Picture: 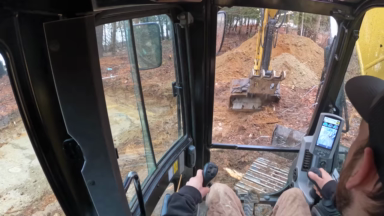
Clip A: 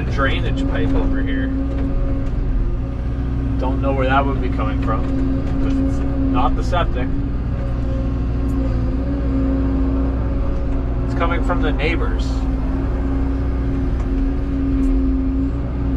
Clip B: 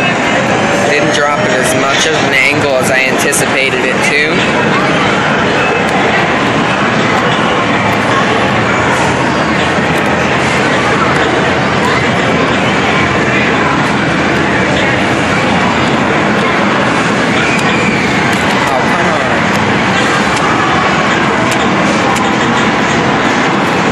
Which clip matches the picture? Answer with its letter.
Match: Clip A